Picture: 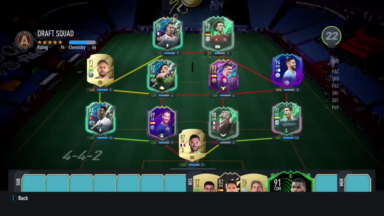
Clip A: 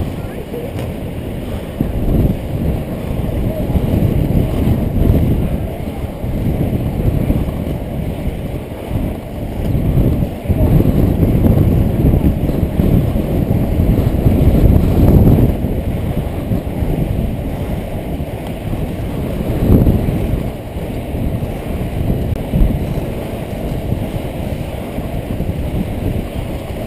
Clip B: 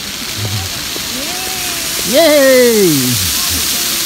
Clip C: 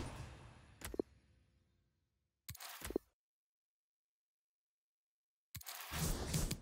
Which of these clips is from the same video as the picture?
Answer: C